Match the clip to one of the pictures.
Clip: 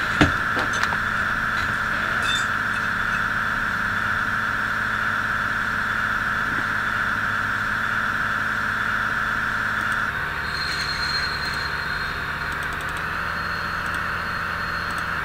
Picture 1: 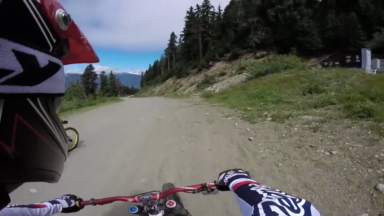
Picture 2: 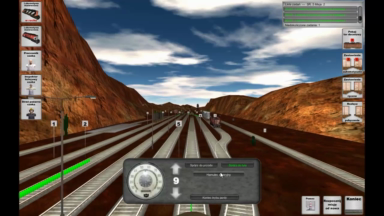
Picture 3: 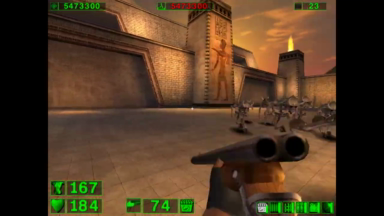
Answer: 2